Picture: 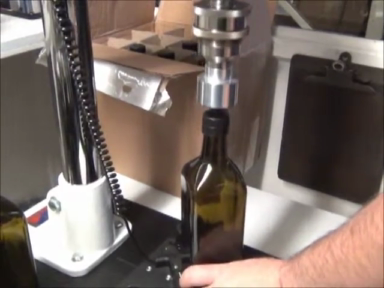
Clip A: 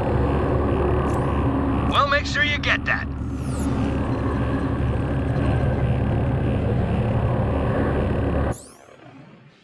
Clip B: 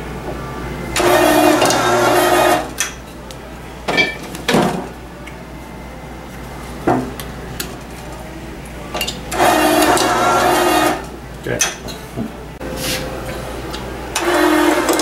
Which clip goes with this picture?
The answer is B